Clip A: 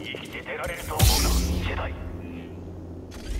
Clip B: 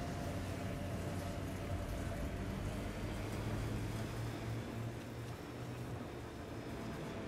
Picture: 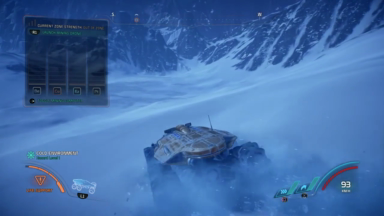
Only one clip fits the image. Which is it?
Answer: B